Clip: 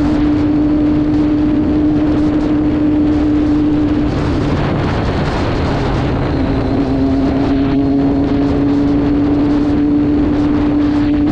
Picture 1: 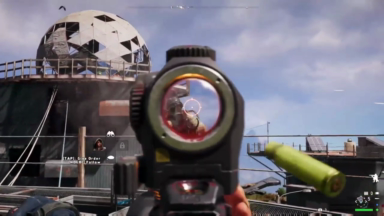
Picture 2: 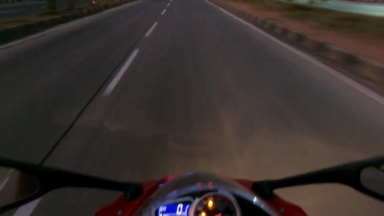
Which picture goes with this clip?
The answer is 2